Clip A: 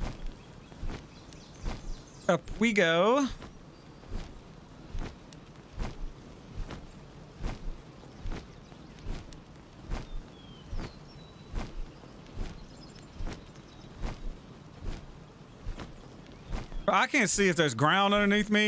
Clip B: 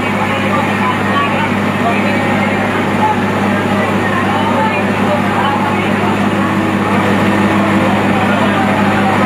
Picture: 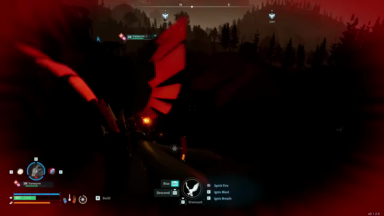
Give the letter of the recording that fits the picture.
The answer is A